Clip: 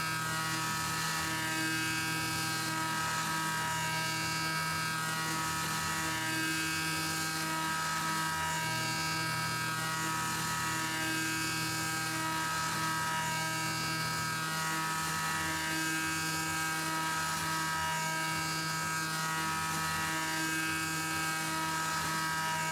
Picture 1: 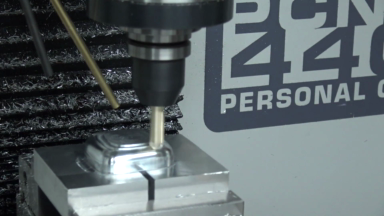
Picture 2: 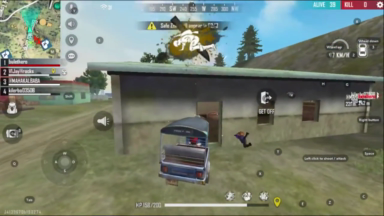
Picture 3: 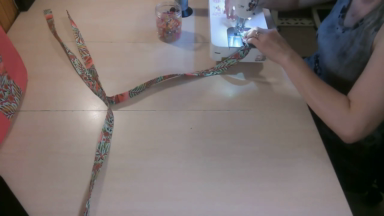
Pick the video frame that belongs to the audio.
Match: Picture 1